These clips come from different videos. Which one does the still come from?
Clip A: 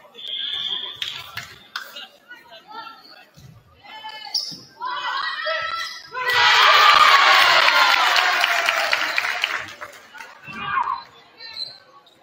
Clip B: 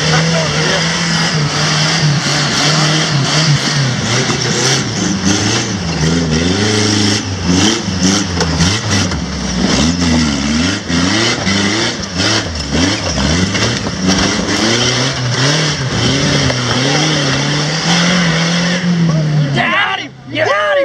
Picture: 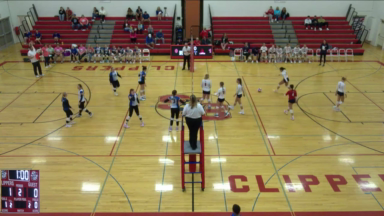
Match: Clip A